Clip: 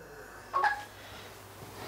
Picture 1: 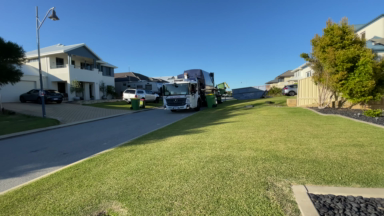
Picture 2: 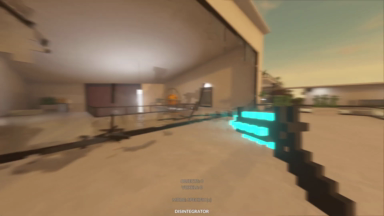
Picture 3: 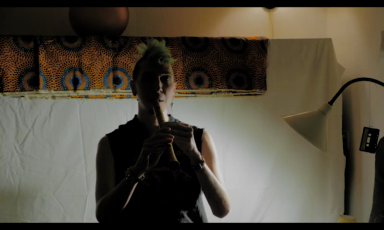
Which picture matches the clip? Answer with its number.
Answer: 3